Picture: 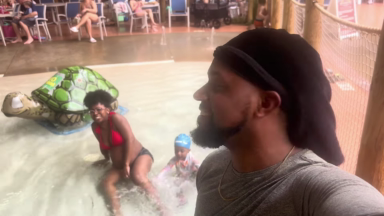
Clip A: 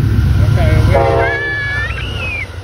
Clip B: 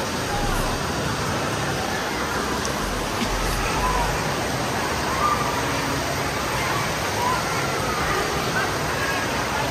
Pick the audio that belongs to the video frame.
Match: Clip B